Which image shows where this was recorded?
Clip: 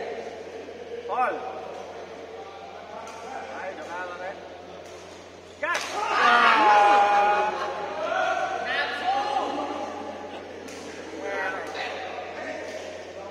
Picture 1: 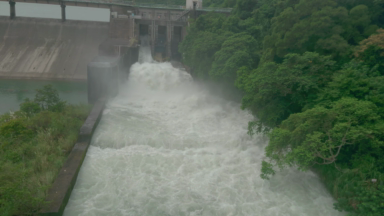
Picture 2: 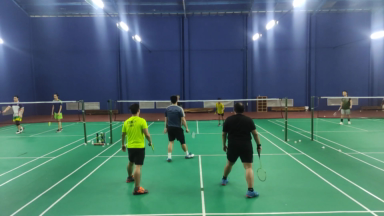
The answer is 2